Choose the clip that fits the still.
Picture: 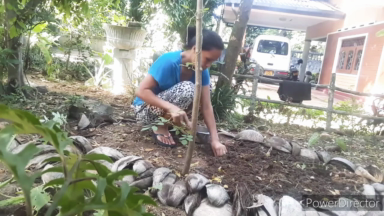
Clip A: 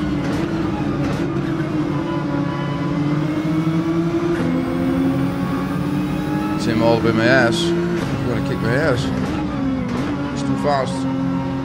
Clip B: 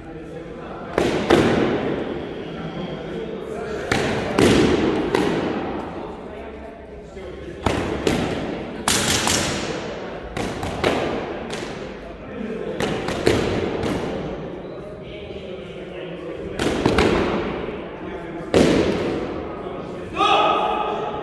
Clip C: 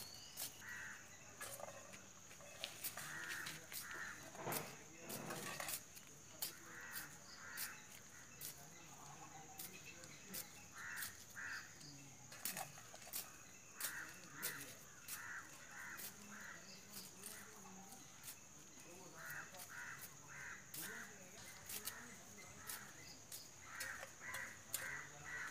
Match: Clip C